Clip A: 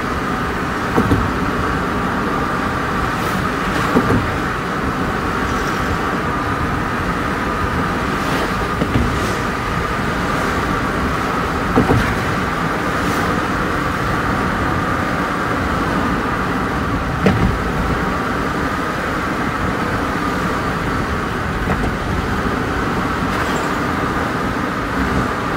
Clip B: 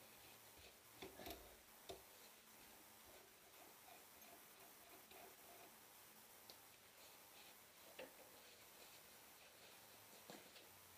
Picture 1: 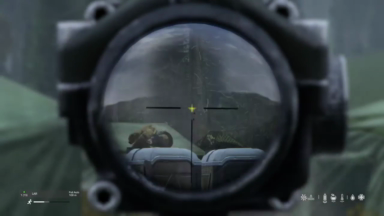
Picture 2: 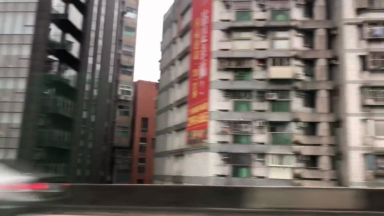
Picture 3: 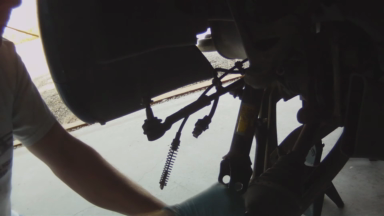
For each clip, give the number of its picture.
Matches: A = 2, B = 3